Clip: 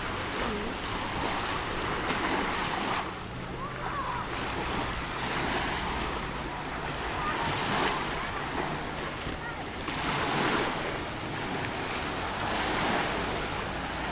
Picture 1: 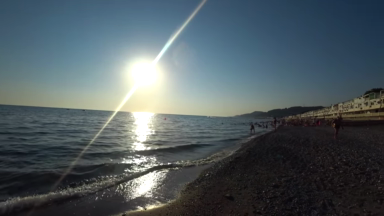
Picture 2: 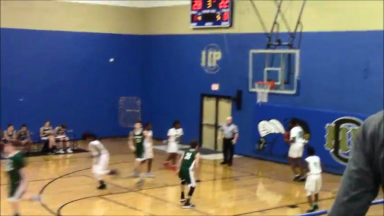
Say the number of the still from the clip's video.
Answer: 1